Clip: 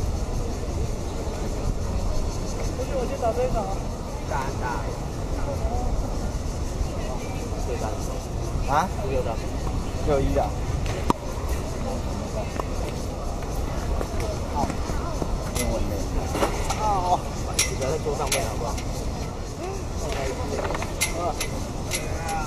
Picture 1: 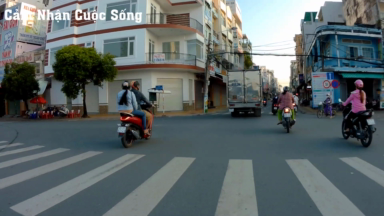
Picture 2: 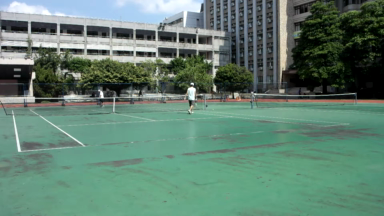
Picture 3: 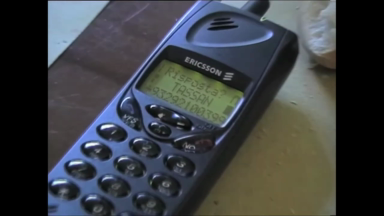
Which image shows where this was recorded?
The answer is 2